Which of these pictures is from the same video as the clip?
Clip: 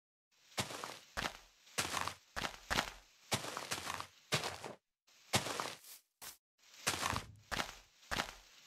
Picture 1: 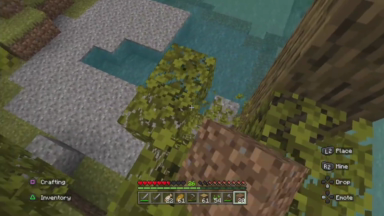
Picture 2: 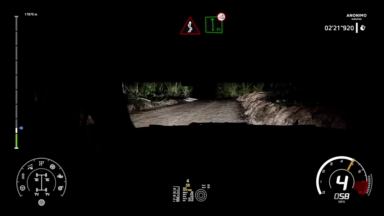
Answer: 1